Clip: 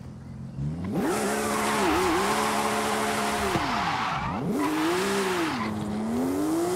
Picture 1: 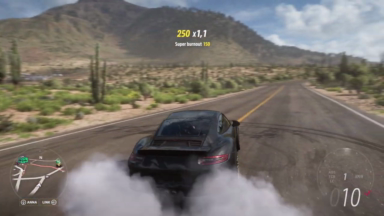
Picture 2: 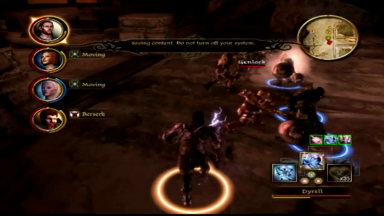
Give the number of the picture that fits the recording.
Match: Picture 1